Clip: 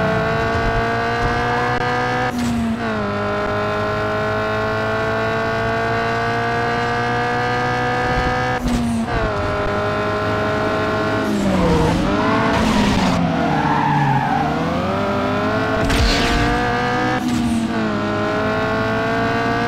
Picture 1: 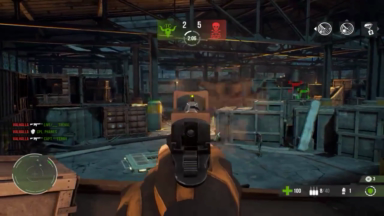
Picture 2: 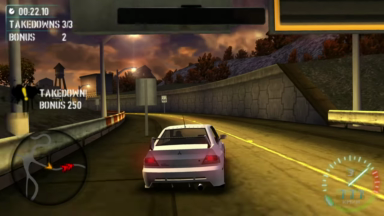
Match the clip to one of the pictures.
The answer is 2